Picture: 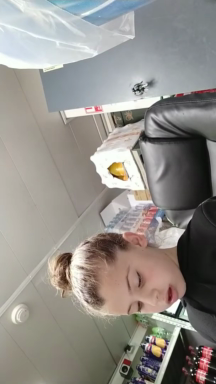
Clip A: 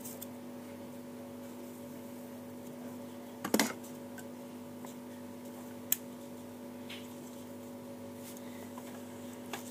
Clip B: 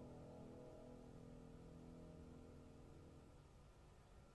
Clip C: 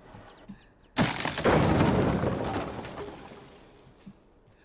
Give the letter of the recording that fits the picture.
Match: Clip A